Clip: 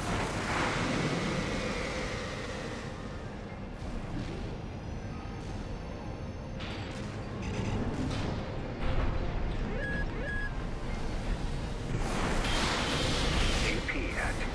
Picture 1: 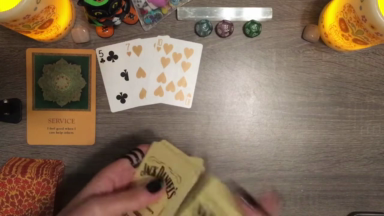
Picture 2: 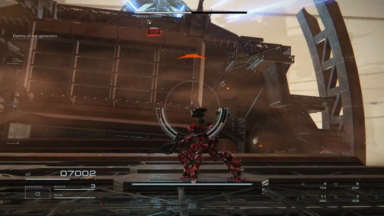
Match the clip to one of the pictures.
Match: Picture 2